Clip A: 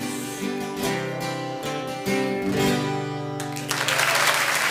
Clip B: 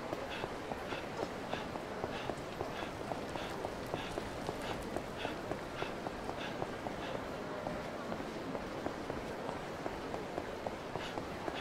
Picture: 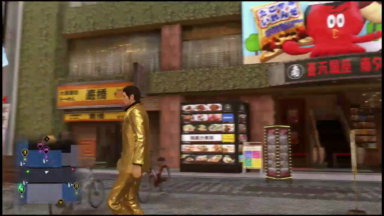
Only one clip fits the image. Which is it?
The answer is B